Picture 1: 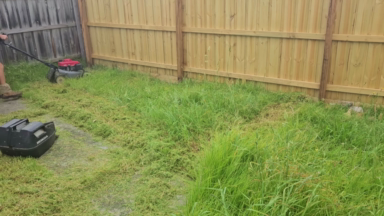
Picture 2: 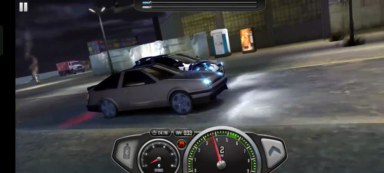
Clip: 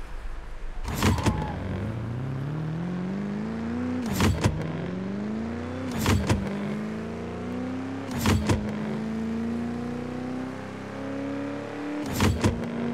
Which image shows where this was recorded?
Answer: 2